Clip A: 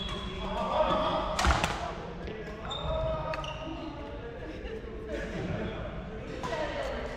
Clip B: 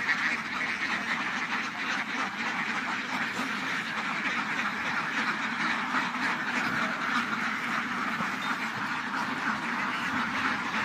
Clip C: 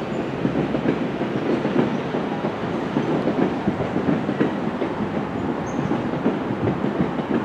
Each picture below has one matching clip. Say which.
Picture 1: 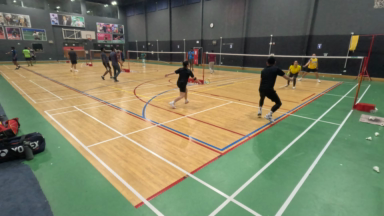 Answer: A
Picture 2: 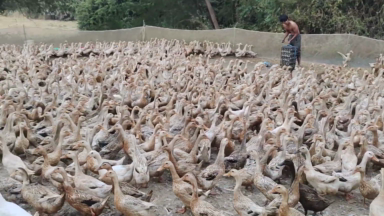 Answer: B